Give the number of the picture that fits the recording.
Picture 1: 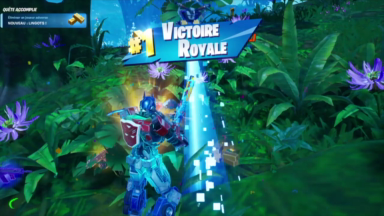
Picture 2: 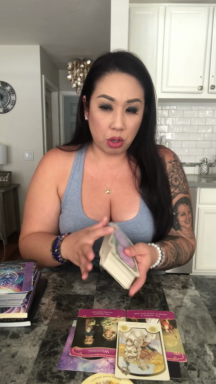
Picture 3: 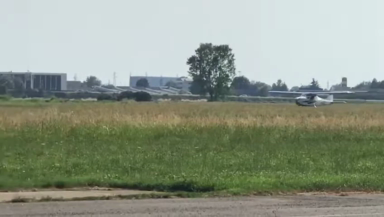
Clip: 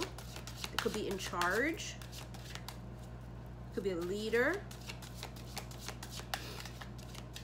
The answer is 2